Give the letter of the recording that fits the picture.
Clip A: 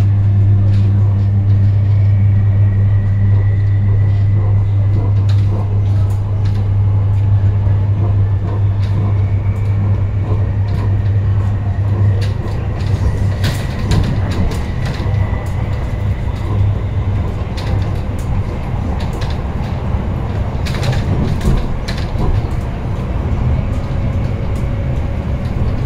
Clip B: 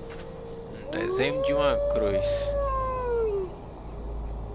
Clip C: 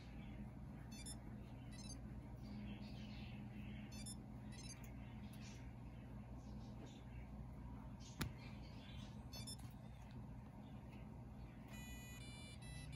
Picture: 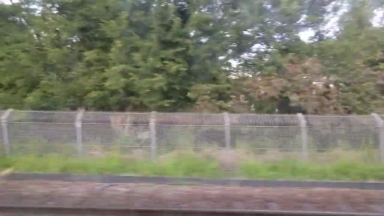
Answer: A